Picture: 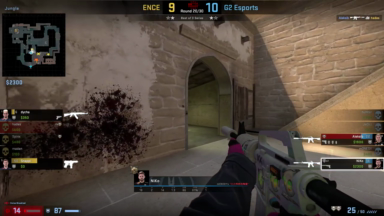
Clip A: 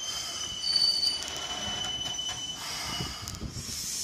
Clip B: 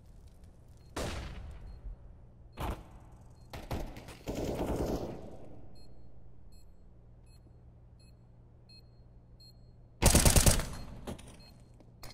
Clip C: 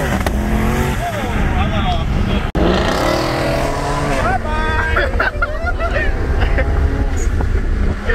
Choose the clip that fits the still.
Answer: B